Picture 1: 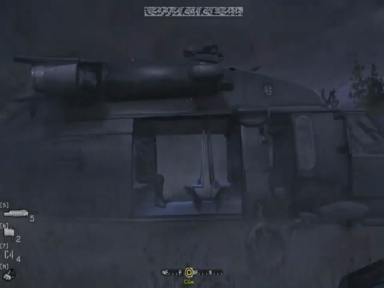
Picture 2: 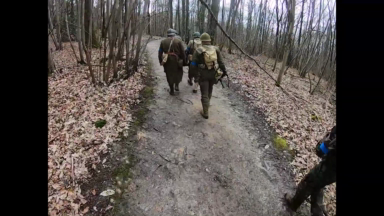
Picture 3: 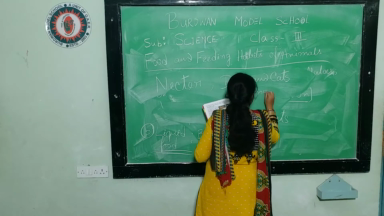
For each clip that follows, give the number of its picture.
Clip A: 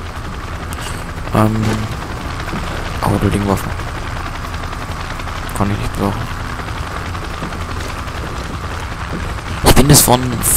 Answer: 1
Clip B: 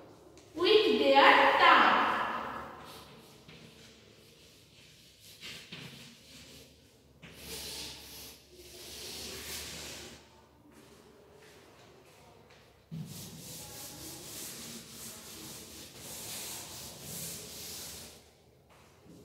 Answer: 3